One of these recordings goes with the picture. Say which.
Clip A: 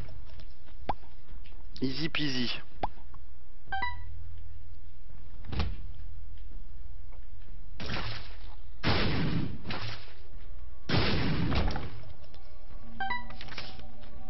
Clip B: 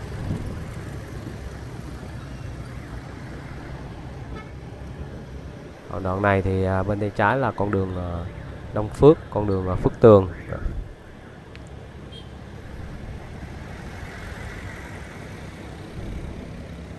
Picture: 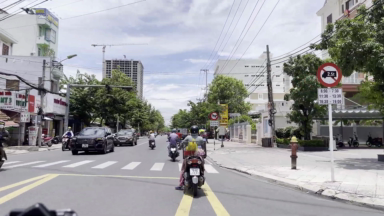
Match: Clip B